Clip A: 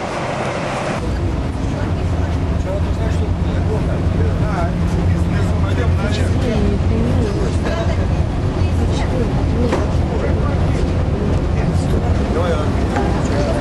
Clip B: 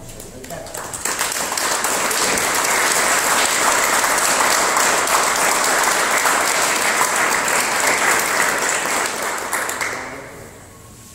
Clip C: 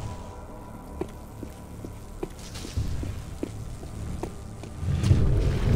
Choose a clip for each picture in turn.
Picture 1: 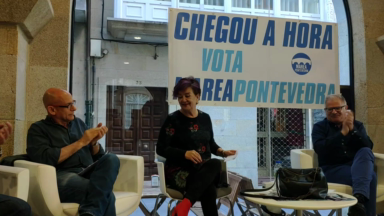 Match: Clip B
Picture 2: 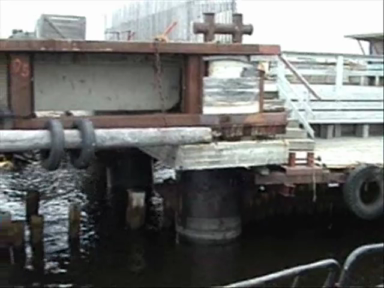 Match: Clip A